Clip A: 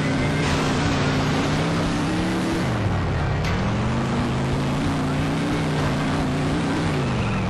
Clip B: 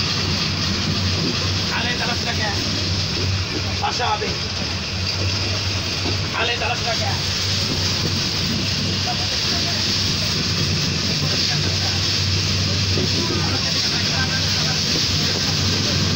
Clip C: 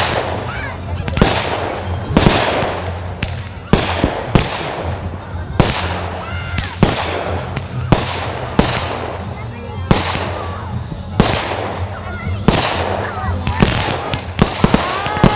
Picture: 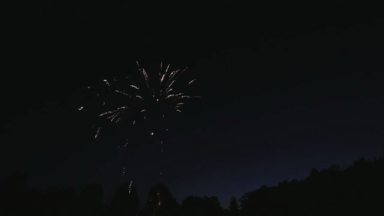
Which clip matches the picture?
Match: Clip C